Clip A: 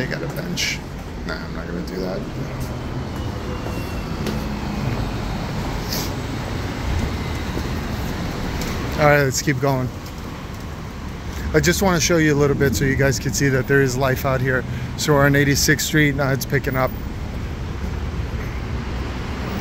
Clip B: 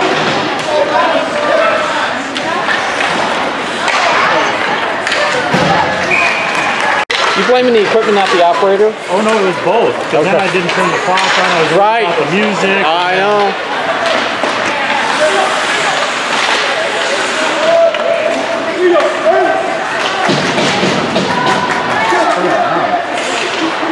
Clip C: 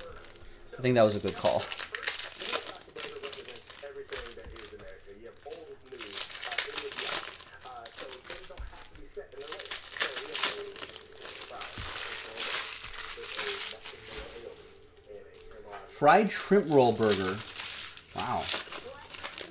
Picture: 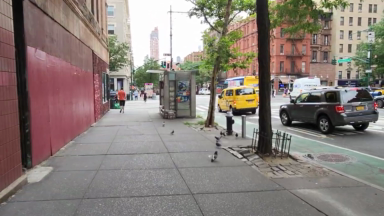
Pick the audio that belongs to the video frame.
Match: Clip A